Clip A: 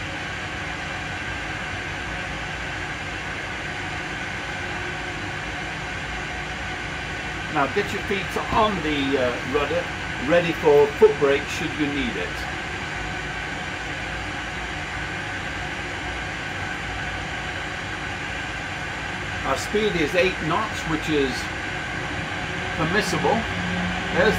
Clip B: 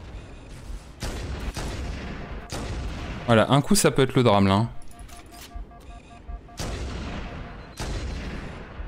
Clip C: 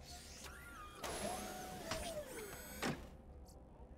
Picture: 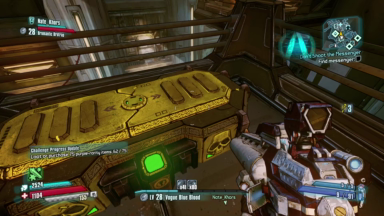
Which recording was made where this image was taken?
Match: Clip C